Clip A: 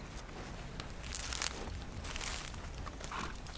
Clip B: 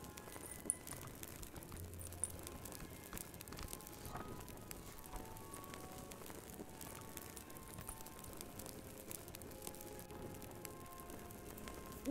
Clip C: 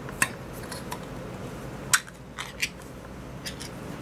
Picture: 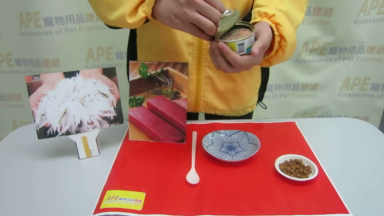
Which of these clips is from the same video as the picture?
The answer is C